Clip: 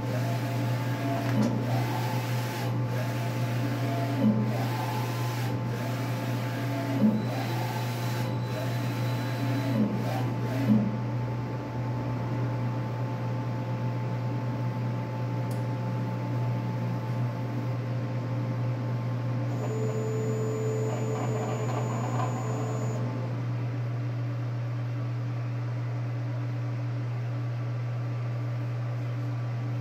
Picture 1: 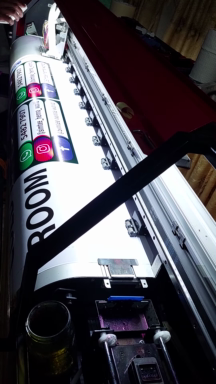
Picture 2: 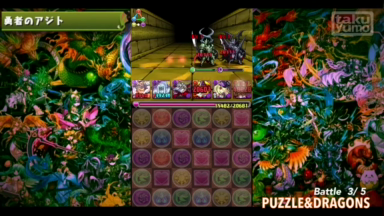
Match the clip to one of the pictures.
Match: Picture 1